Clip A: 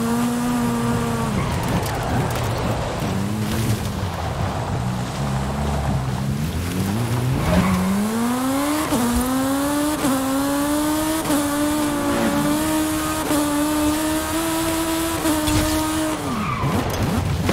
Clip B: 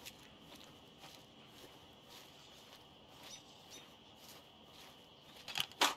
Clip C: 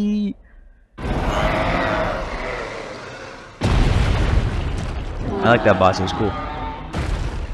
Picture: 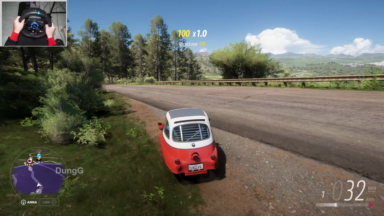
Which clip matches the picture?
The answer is A